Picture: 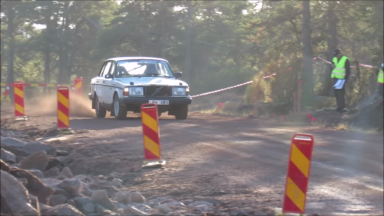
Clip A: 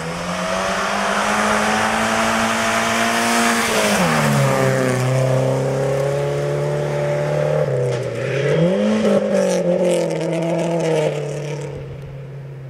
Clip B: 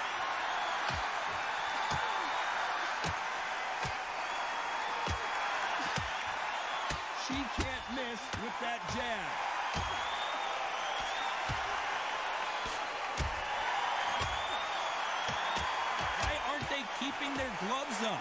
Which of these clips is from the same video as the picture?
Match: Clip A